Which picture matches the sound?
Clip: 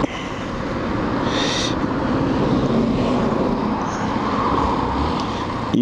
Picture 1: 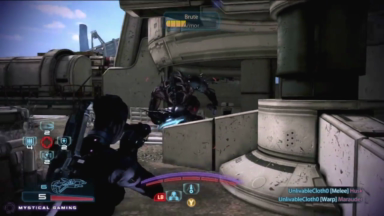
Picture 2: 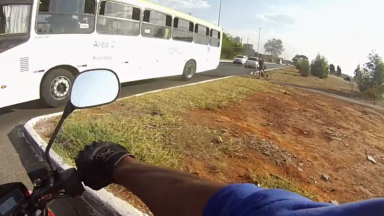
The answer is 2